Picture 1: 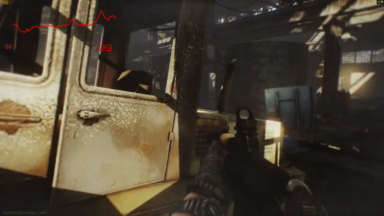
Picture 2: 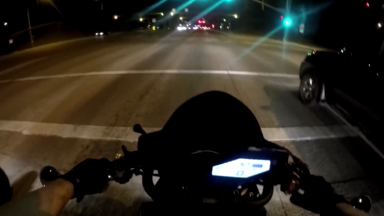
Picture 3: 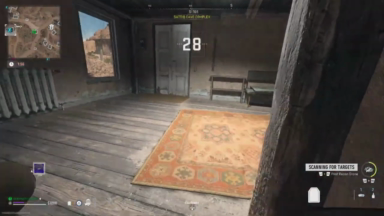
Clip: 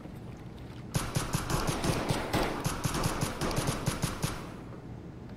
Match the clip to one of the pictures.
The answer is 1